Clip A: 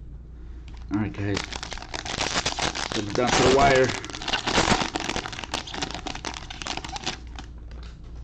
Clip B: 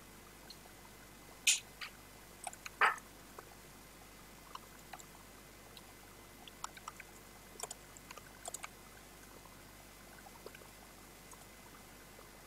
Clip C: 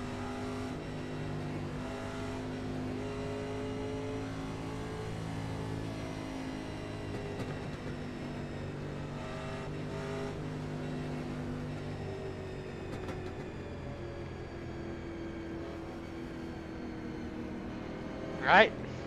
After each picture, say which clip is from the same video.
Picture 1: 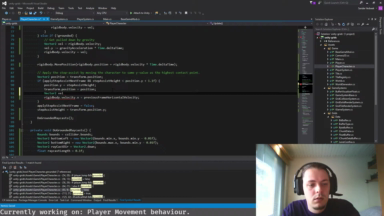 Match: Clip B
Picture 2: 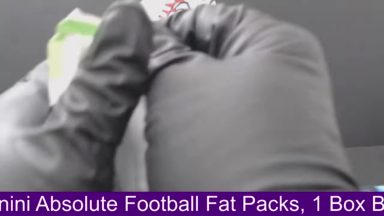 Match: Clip A